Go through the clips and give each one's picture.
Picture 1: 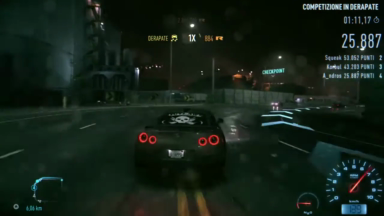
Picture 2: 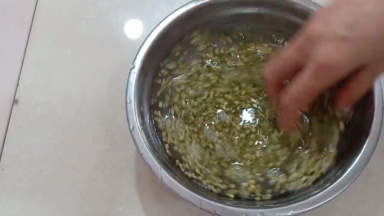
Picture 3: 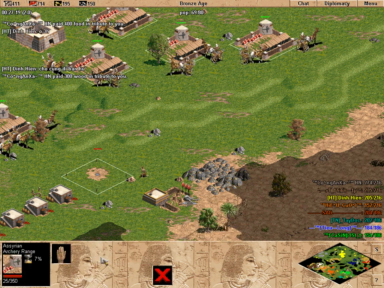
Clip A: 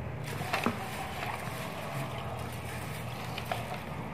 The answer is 2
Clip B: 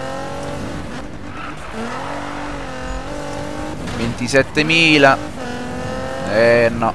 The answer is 1